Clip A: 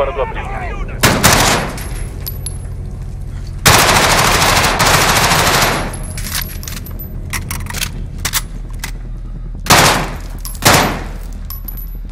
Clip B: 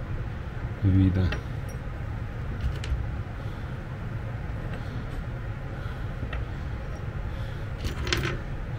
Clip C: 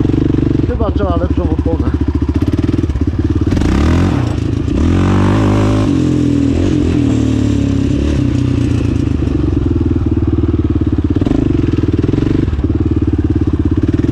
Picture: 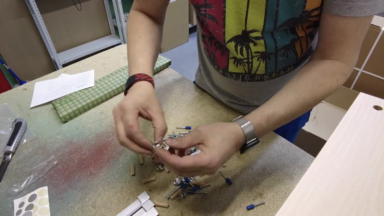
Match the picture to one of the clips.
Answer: B